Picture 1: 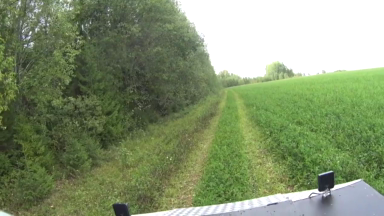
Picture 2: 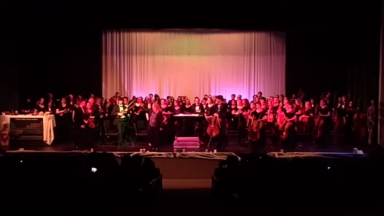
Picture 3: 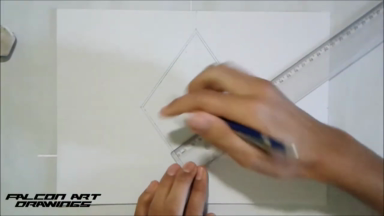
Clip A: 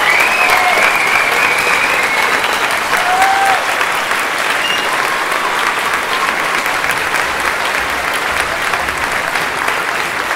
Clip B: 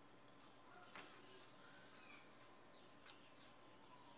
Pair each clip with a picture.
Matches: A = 2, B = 3